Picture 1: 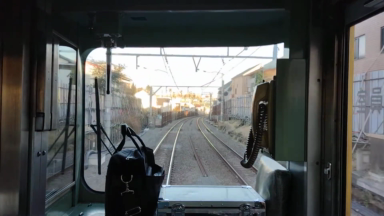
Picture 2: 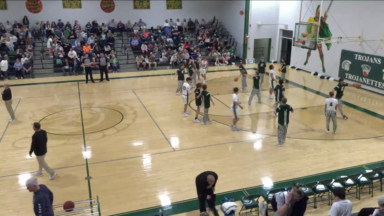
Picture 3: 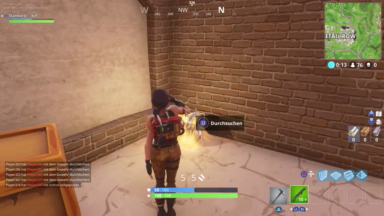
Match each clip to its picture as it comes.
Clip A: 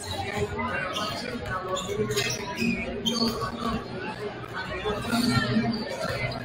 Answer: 2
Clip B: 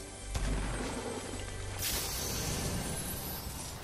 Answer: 3